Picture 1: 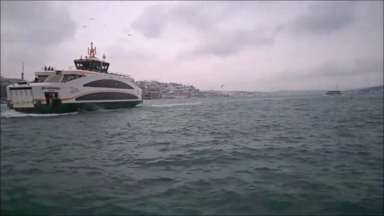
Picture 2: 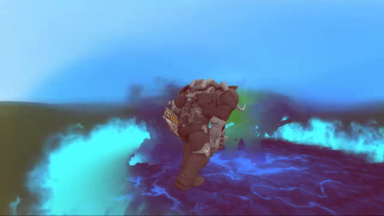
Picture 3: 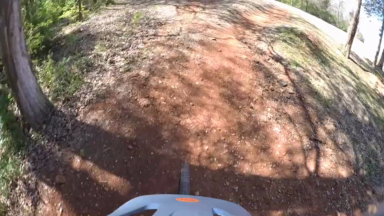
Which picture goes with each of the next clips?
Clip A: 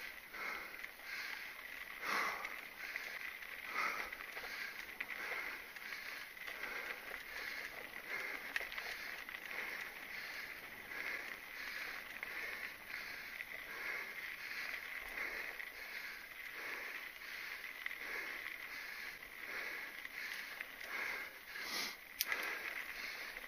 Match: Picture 3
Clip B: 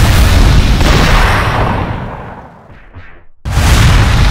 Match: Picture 2